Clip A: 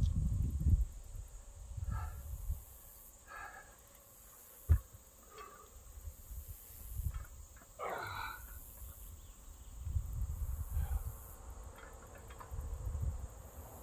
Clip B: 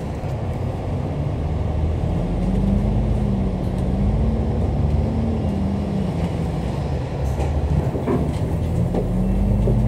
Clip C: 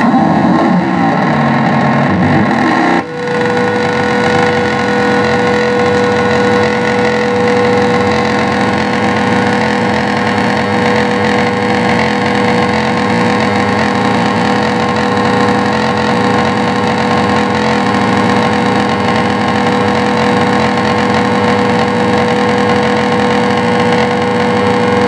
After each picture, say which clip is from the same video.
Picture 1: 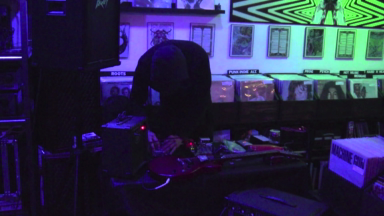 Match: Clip C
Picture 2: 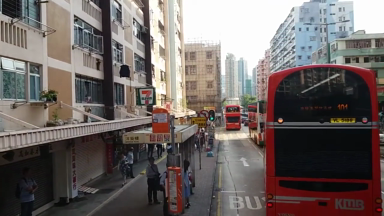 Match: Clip B